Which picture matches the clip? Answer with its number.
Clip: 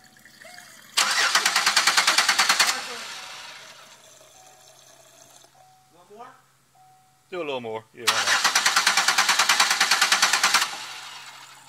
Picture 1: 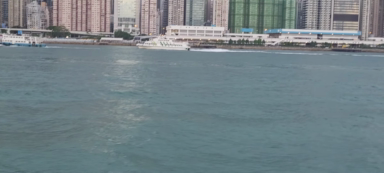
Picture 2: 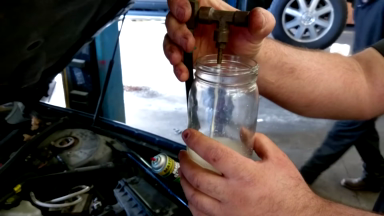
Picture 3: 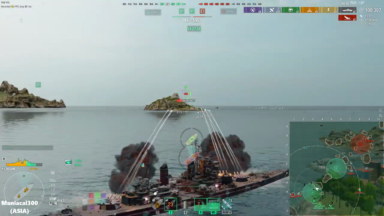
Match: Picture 2